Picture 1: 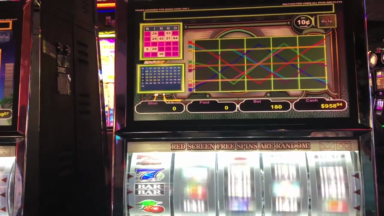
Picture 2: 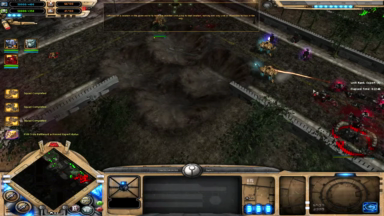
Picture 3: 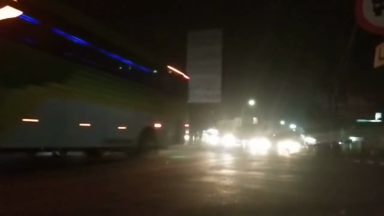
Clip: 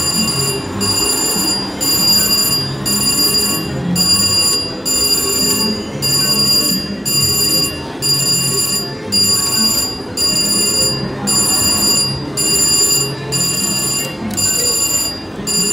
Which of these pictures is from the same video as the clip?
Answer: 1